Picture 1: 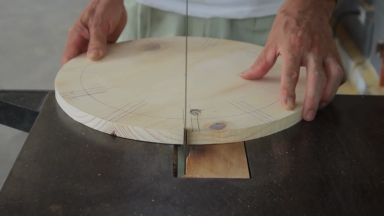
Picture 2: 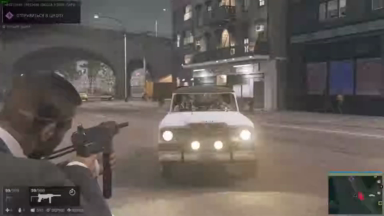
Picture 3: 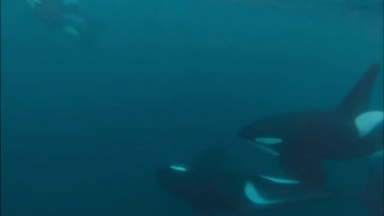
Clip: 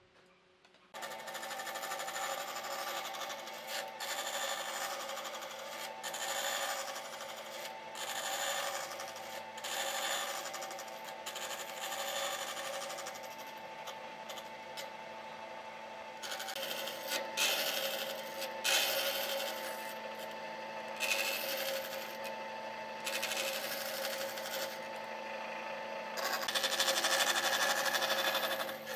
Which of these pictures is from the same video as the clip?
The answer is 1